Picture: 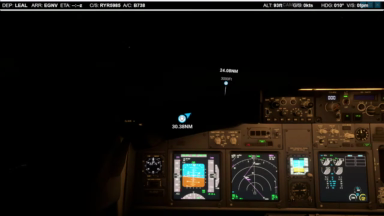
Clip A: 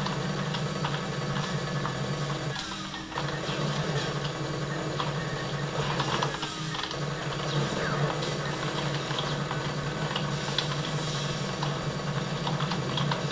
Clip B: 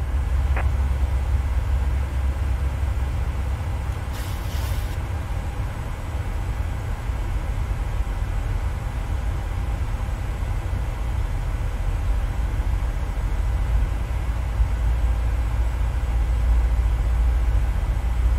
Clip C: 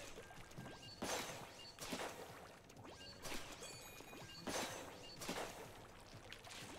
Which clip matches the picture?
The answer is B